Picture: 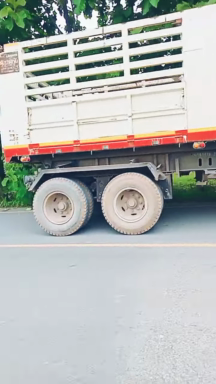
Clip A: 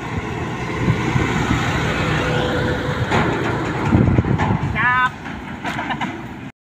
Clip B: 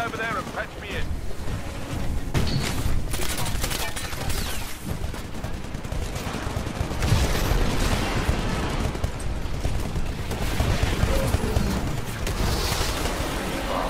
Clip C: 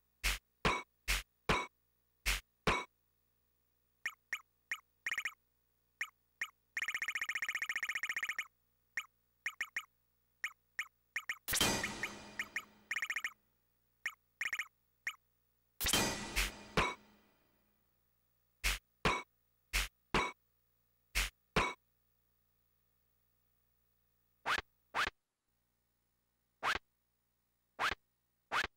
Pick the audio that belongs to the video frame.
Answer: A